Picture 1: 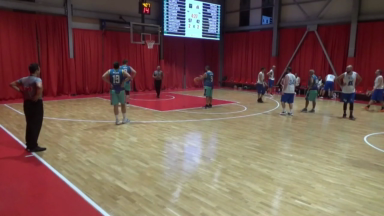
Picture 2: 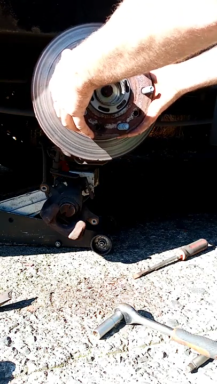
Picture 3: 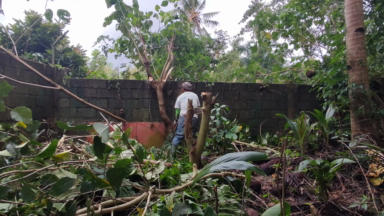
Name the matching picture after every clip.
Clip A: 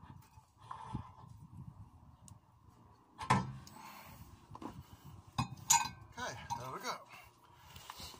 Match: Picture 2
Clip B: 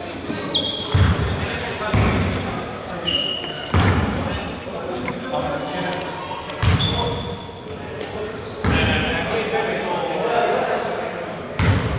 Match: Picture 1